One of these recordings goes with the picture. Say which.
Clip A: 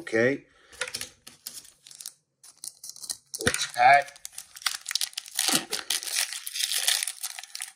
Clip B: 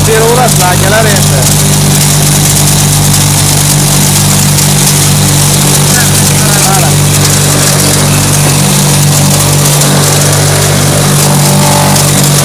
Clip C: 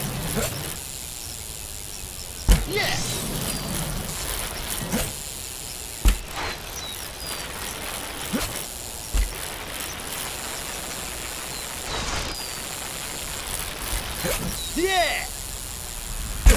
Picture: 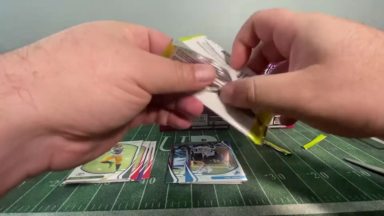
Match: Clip A